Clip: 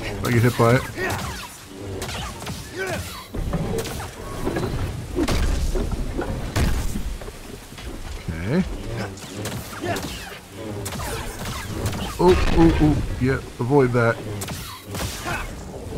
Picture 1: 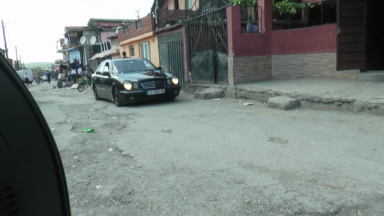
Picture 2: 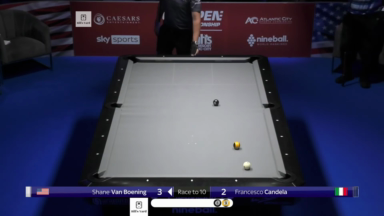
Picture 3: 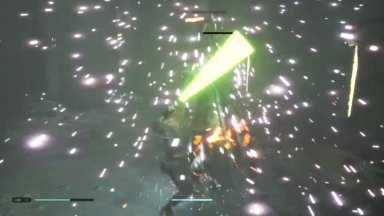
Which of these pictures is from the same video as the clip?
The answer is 3